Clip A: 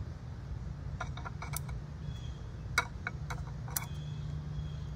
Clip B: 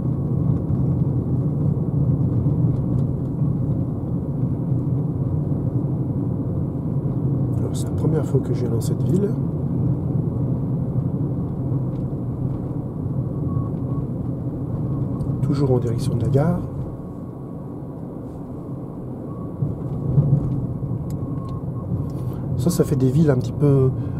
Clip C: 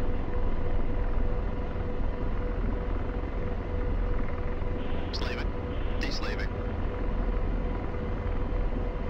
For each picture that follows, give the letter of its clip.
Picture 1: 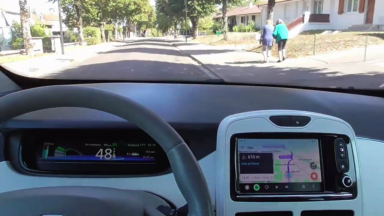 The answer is B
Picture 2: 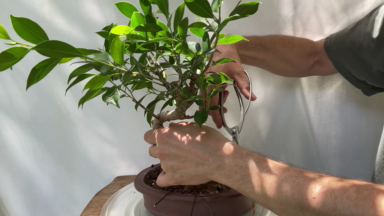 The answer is A